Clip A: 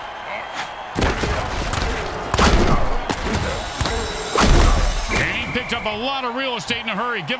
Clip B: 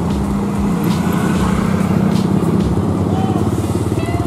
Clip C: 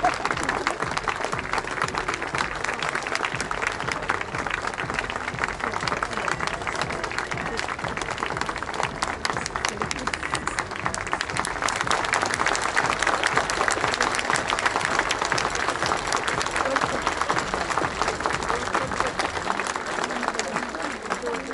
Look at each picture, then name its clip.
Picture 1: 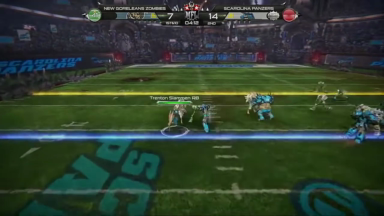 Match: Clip A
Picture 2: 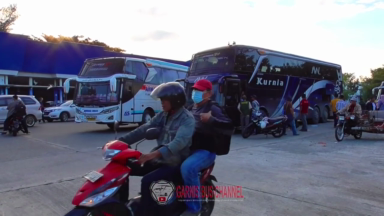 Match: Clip B